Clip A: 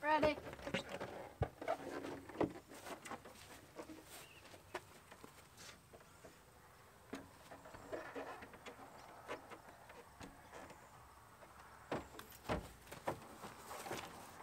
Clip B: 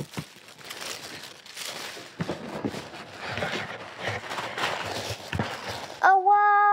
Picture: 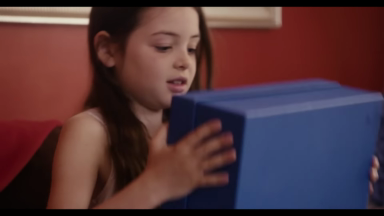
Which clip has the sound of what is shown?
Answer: B